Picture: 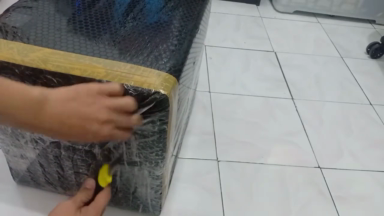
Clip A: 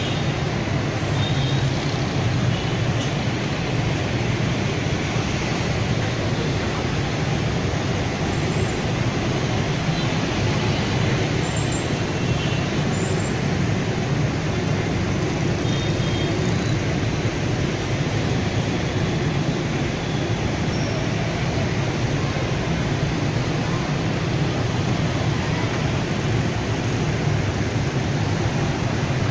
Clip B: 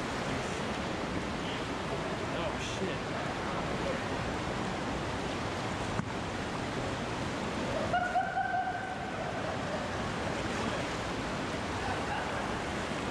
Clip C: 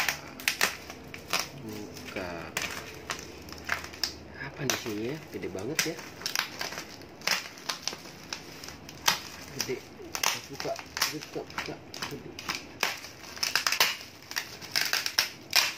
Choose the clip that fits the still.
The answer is C